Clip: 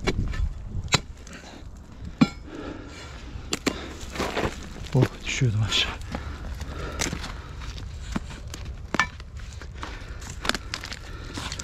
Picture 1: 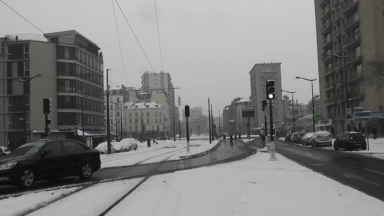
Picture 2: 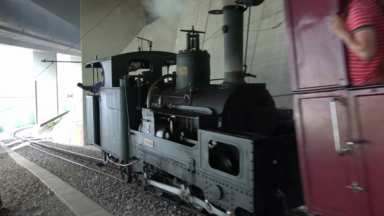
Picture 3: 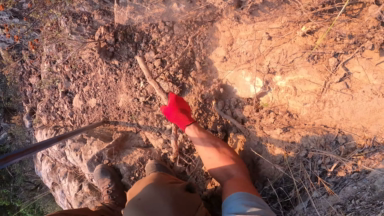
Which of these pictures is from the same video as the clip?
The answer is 3